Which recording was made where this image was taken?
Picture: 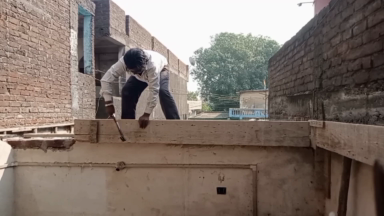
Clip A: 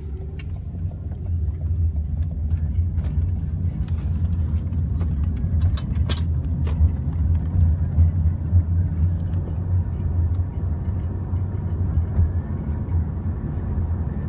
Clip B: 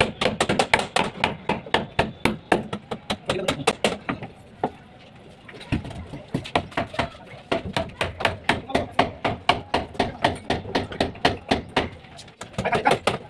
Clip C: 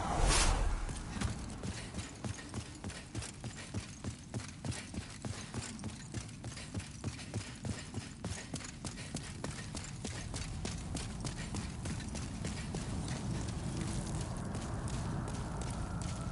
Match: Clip B